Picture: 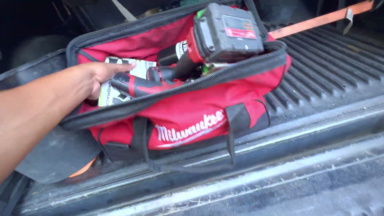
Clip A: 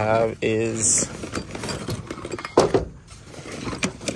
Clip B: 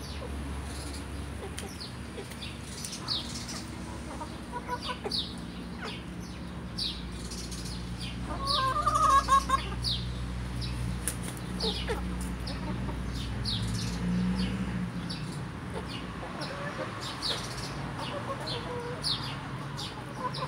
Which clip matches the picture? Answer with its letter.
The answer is A